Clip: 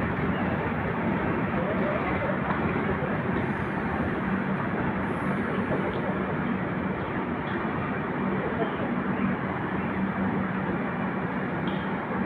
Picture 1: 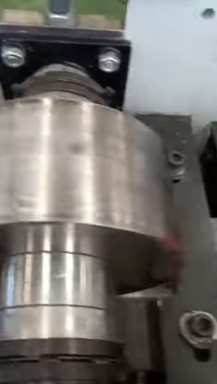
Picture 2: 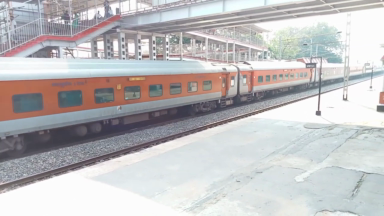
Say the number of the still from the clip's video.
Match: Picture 2